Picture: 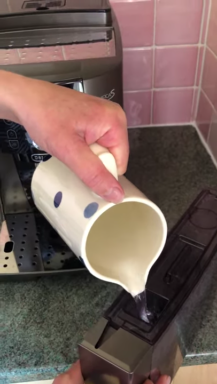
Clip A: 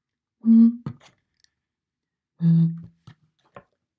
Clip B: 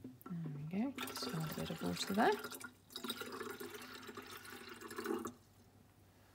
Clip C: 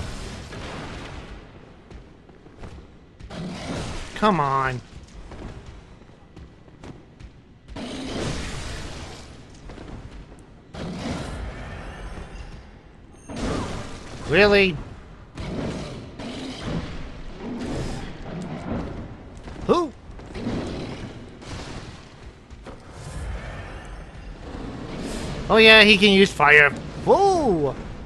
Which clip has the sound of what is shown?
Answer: B